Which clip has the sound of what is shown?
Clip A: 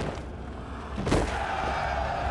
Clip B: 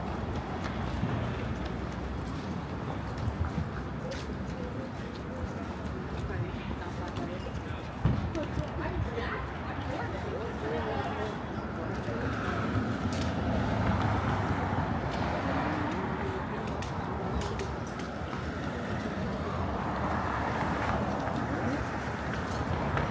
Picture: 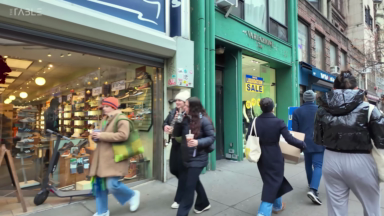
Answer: B